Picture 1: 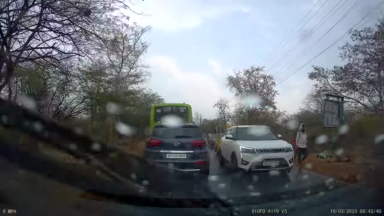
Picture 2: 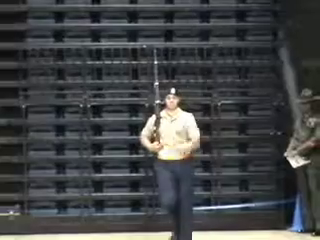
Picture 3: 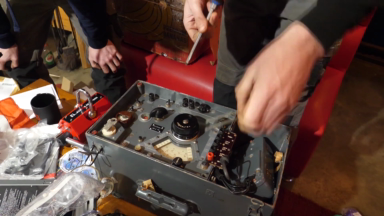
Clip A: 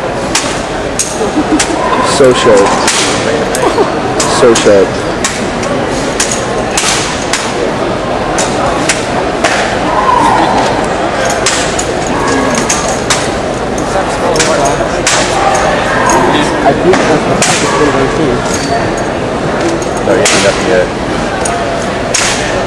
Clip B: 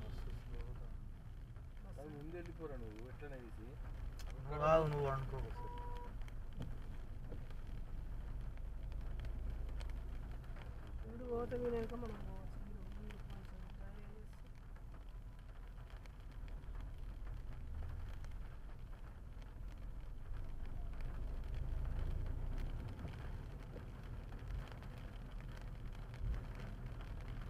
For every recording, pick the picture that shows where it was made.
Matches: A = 2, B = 1